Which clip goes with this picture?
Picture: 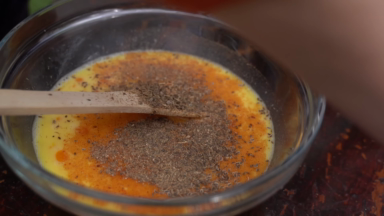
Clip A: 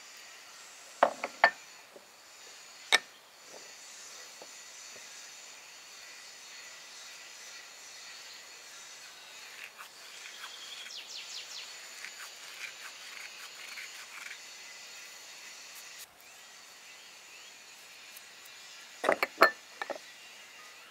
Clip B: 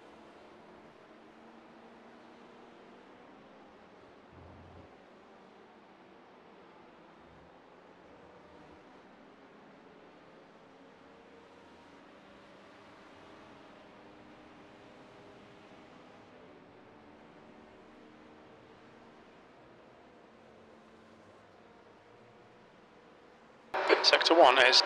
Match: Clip A